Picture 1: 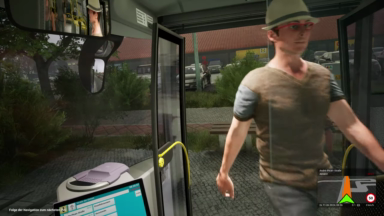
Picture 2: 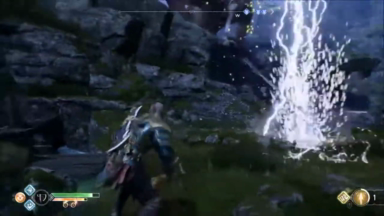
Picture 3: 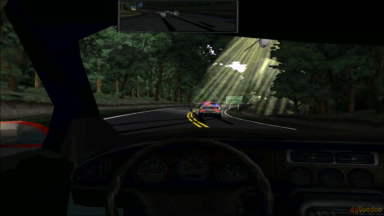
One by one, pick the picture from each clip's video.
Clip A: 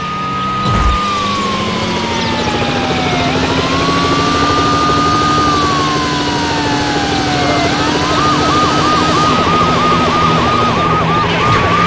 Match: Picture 3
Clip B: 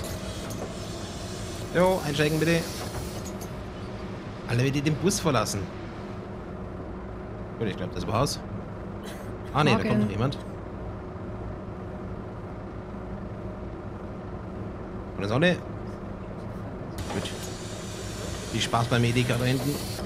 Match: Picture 1